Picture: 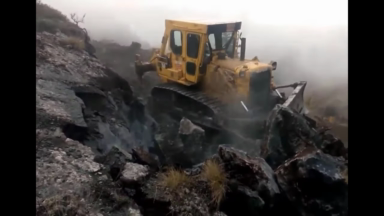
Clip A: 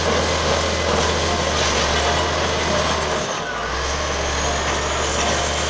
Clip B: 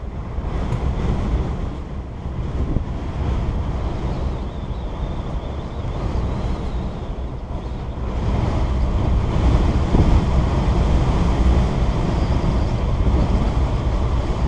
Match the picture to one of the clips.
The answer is A